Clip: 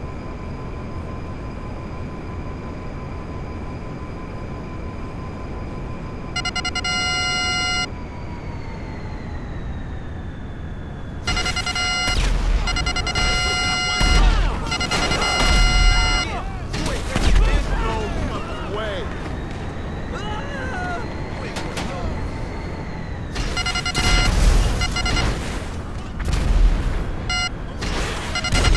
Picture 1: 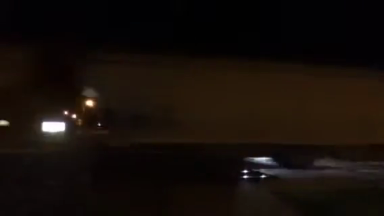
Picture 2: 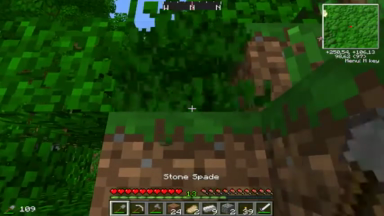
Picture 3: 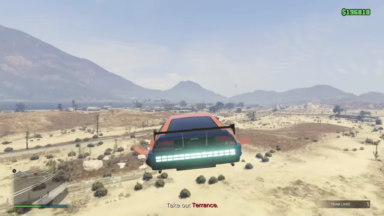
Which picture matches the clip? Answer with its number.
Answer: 3